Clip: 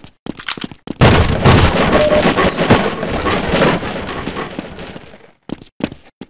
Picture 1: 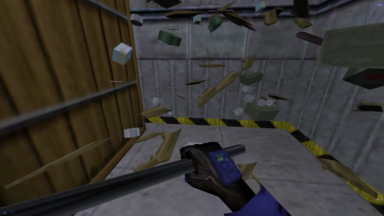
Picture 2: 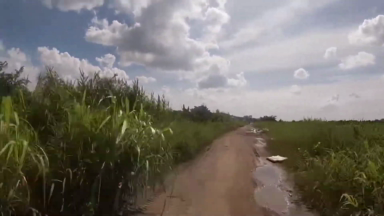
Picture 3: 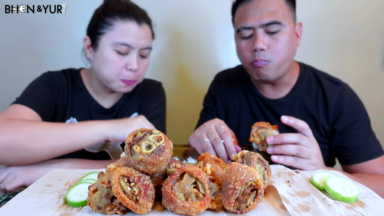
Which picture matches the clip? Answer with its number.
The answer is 1